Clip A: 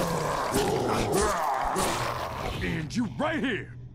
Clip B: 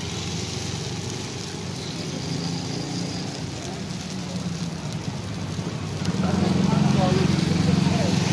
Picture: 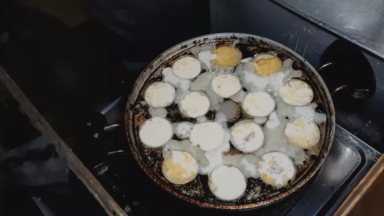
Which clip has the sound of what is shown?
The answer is B